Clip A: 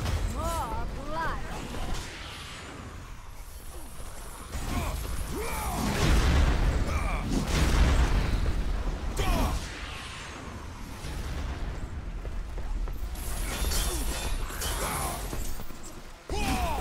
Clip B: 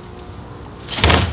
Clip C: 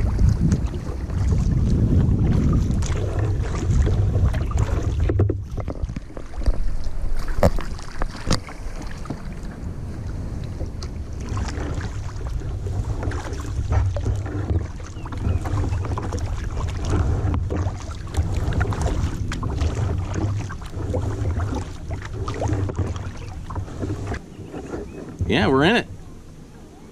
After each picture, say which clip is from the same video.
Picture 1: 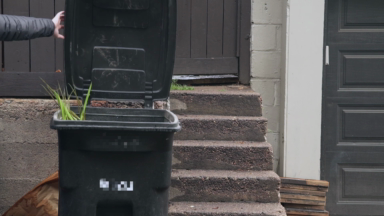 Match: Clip B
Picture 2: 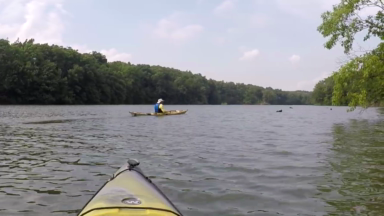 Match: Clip C